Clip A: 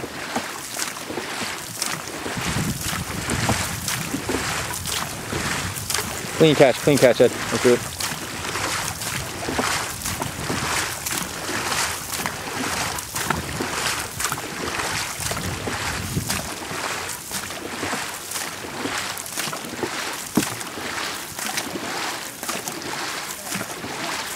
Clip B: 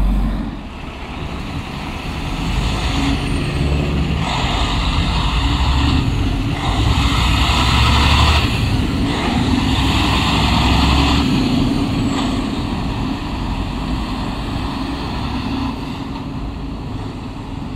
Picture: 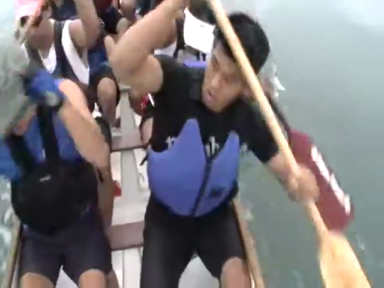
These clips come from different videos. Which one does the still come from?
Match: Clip A